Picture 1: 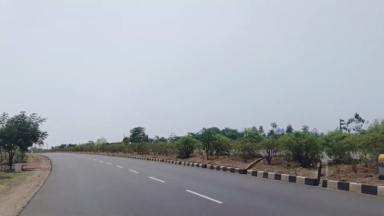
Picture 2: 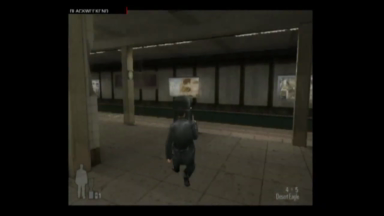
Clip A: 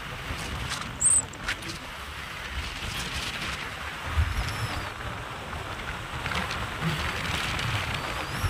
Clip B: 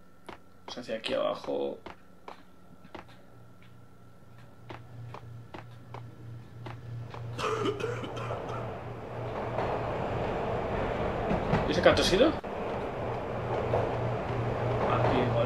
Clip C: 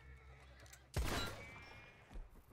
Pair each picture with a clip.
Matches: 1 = A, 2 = B